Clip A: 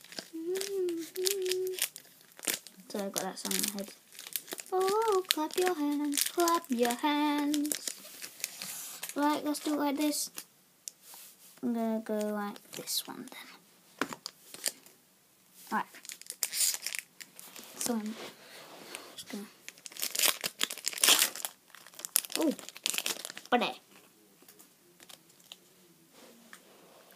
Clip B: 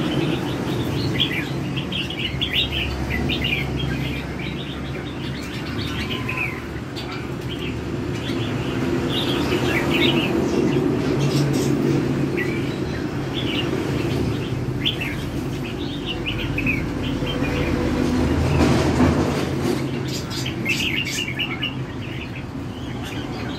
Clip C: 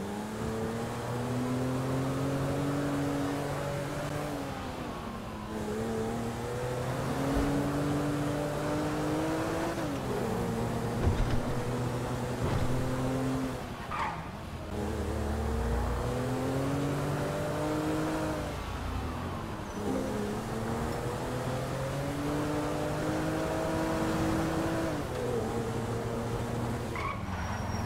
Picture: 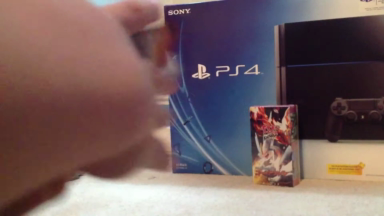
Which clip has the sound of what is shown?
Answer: A